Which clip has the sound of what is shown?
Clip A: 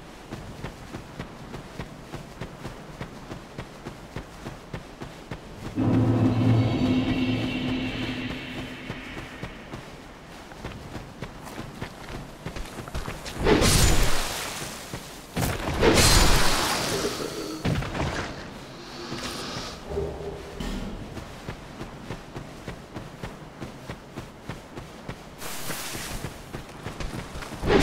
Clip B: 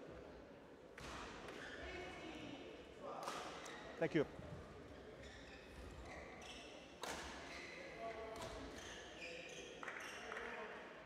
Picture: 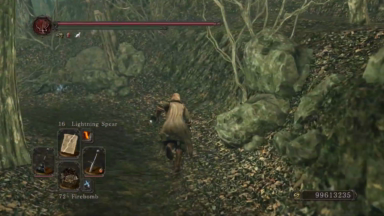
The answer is A